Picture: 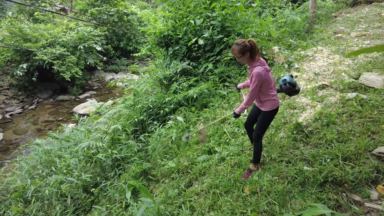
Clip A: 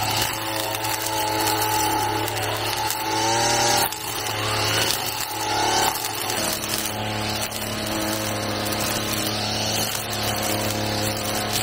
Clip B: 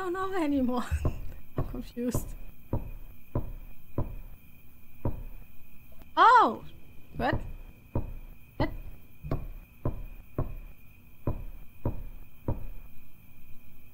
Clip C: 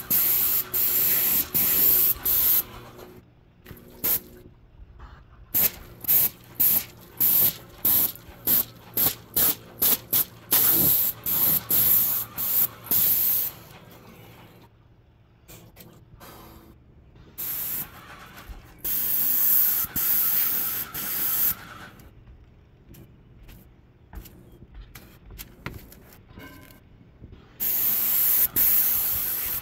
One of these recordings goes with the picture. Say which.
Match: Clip A